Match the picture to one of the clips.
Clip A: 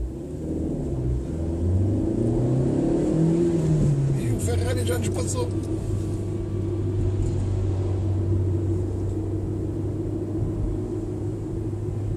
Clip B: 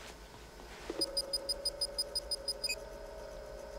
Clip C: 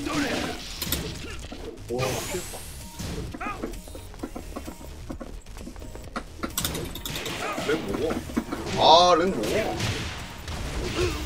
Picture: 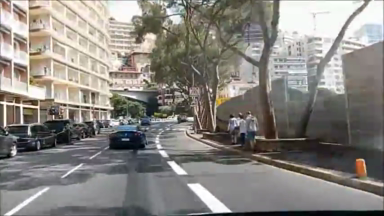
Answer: A